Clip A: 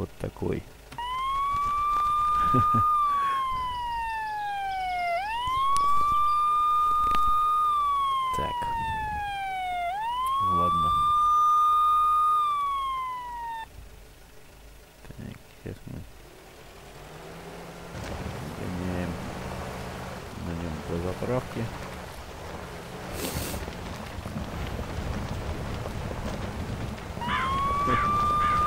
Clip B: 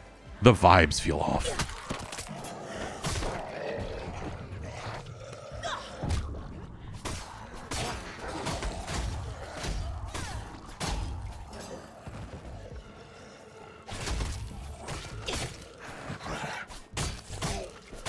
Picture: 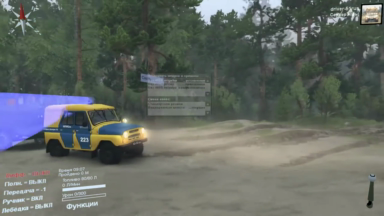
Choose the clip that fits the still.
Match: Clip A